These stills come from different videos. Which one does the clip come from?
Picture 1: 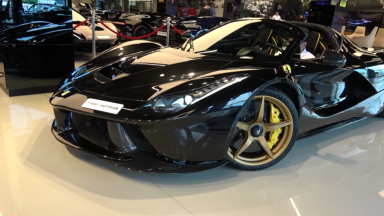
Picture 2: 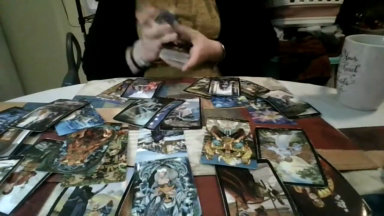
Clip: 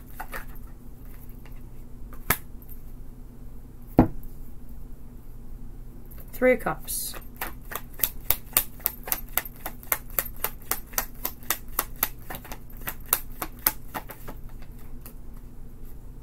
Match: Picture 2